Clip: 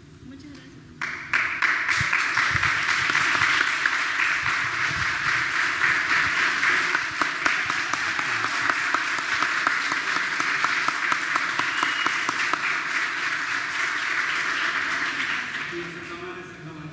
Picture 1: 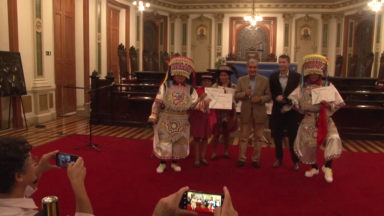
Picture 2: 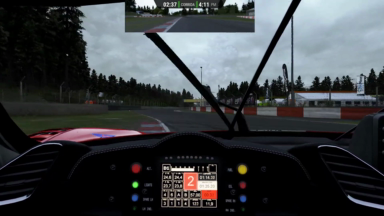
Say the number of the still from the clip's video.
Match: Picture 1